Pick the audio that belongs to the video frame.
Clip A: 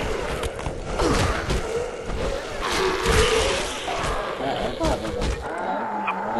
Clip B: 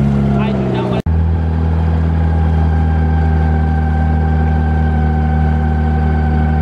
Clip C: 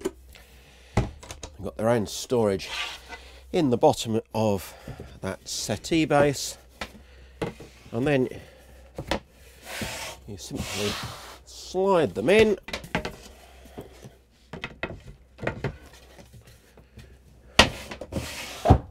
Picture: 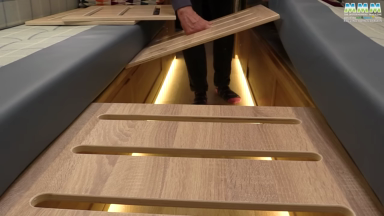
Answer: C